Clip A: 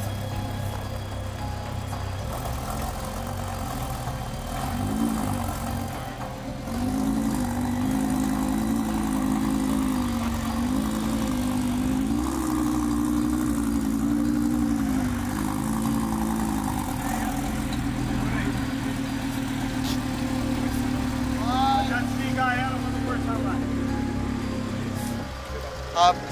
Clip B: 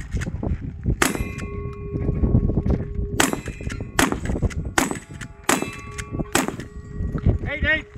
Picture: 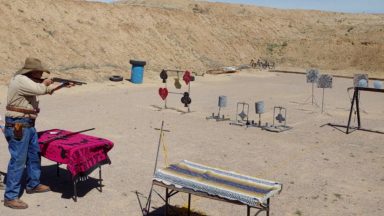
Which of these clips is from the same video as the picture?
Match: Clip B